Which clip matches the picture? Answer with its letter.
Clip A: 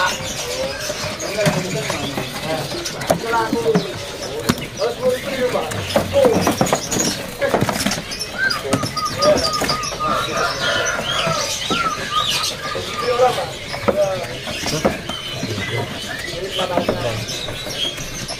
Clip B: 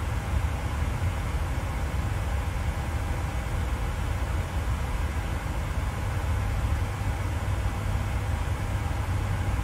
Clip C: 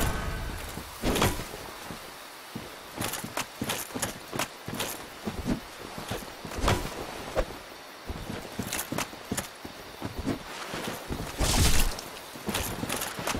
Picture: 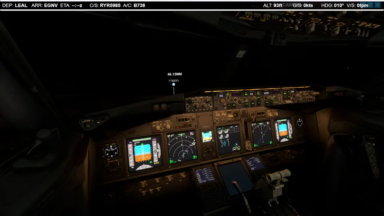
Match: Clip B